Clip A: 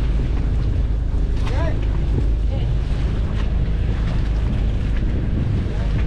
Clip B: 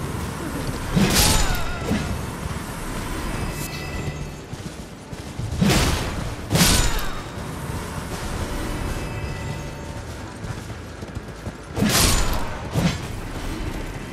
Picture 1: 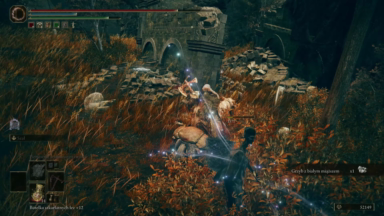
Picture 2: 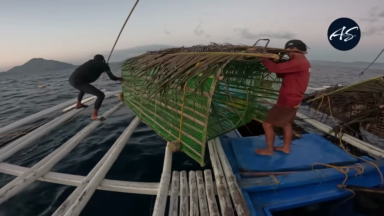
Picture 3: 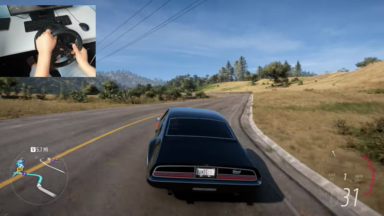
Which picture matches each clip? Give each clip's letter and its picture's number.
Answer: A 2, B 1